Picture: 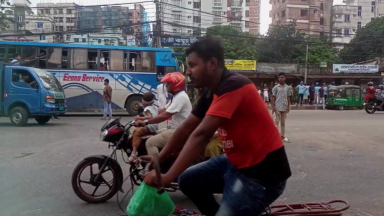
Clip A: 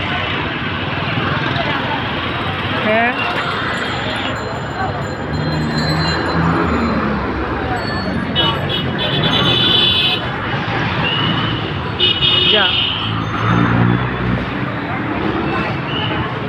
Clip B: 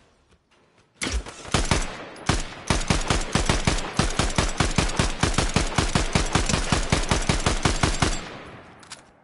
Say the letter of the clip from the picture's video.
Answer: A